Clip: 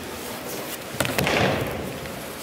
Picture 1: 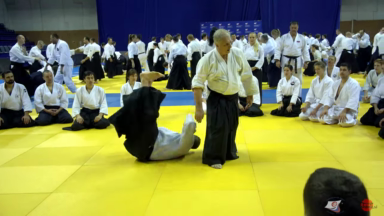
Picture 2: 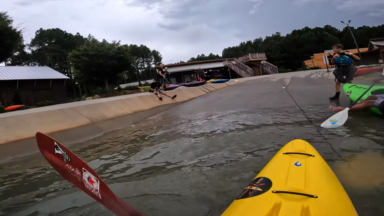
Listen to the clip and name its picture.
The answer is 1